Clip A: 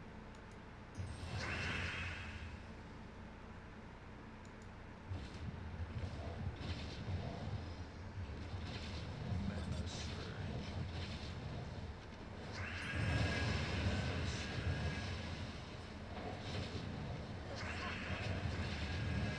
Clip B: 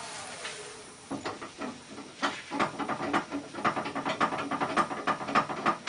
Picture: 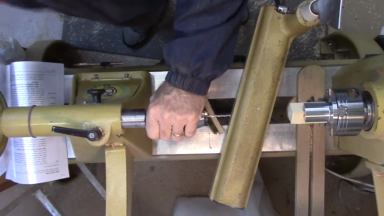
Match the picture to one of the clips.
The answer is B